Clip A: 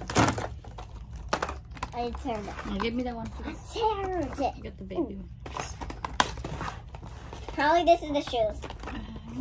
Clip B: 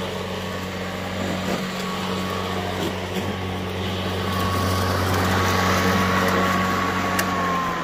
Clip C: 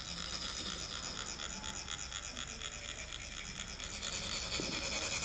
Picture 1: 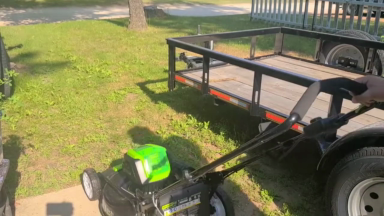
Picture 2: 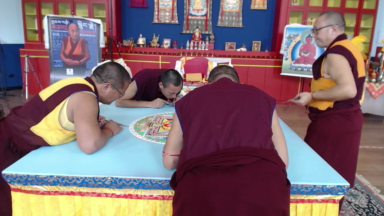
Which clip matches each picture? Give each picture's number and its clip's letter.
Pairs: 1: B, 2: C